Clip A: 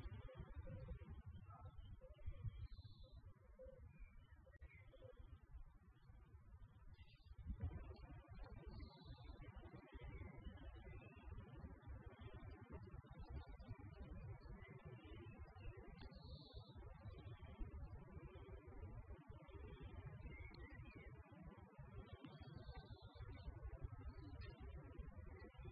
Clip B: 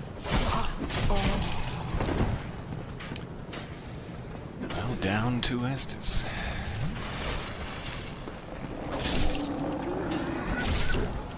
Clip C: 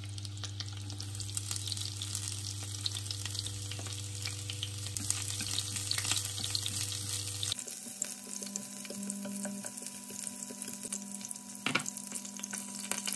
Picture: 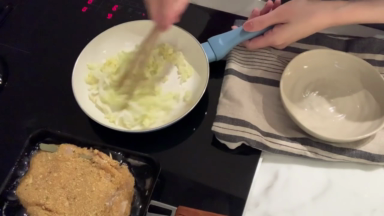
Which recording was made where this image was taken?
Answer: C